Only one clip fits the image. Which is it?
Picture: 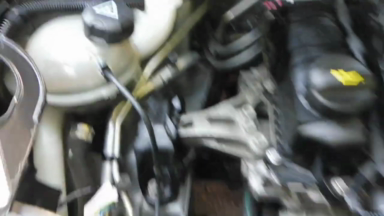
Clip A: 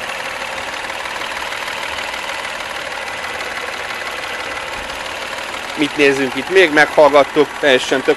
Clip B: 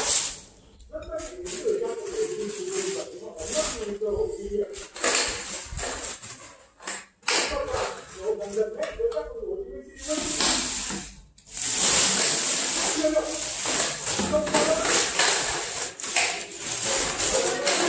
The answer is A